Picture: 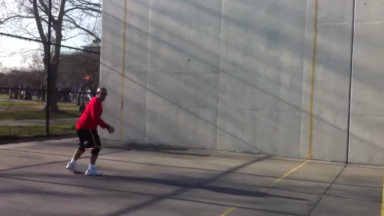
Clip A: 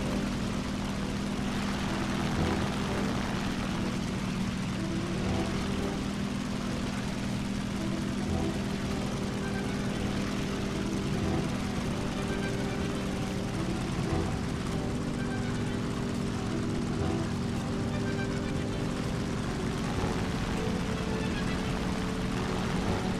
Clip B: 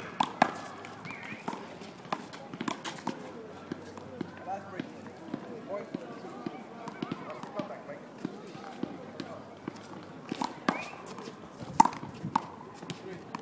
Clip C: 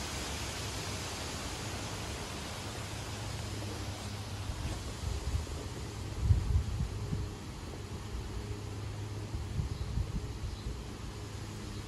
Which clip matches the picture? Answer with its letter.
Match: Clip B